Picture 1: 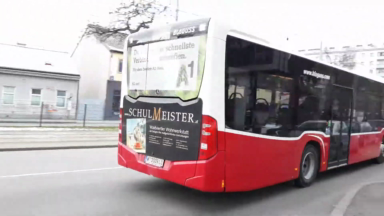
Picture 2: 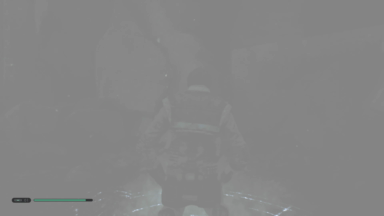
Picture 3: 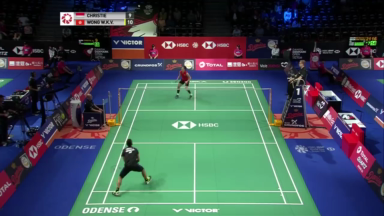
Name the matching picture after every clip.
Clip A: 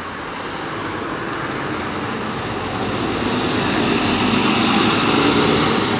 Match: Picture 1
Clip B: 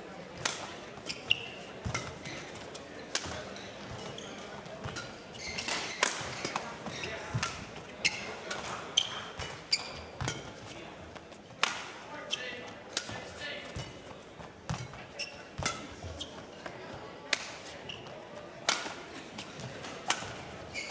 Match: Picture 3